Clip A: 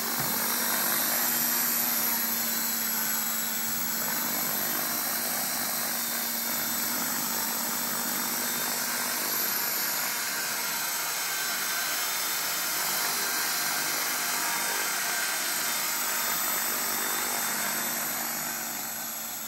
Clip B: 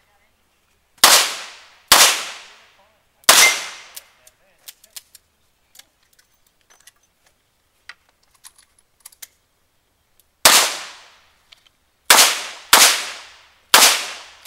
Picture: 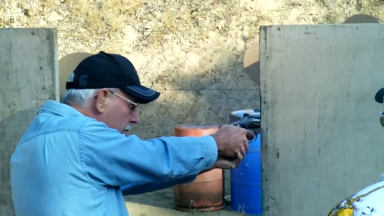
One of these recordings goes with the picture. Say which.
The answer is B